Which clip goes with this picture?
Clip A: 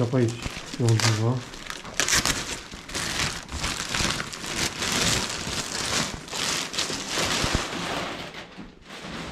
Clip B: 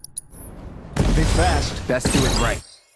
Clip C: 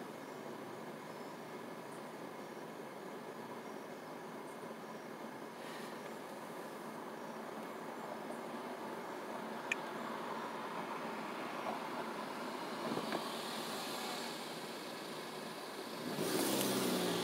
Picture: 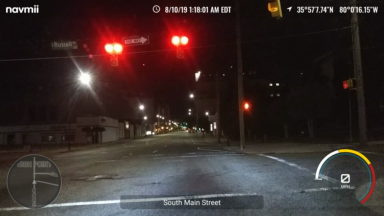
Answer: C